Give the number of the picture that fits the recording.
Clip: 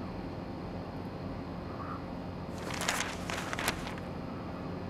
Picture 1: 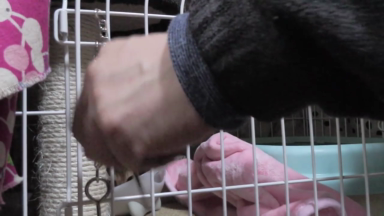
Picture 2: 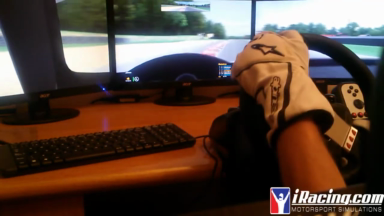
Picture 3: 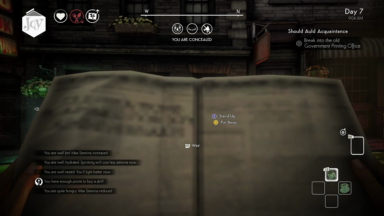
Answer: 3